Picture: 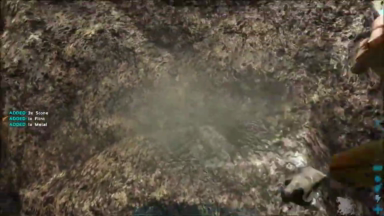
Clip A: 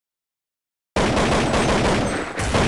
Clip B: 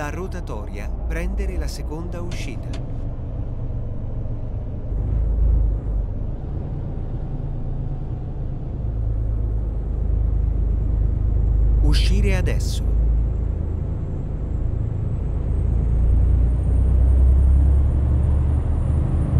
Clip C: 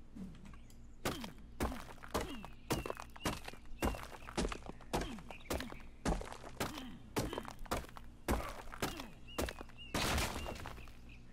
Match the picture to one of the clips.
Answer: C